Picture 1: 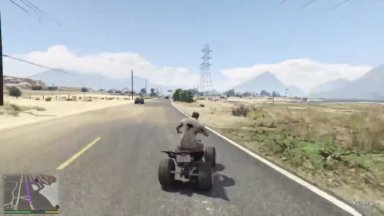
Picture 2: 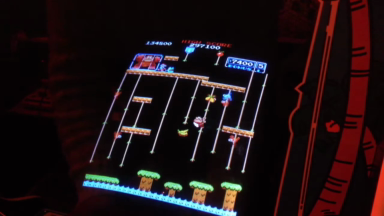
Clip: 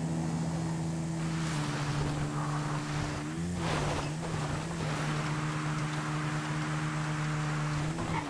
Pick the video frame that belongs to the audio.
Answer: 1